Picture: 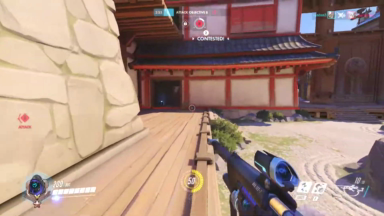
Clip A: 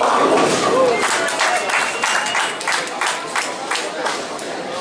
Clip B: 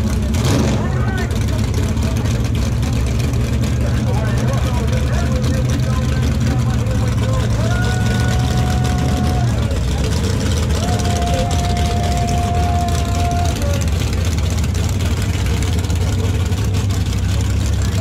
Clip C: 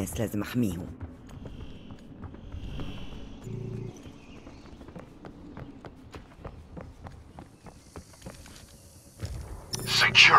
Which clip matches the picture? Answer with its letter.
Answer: C